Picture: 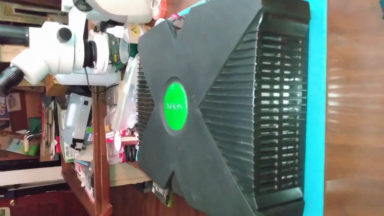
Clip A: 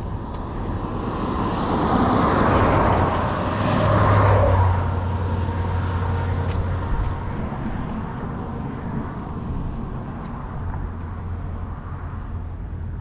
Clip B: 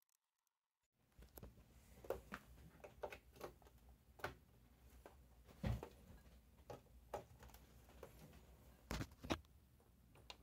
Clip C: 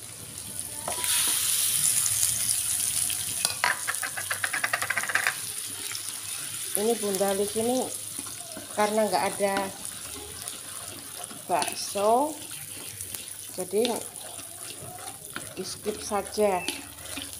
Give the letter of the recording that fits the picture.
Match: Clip B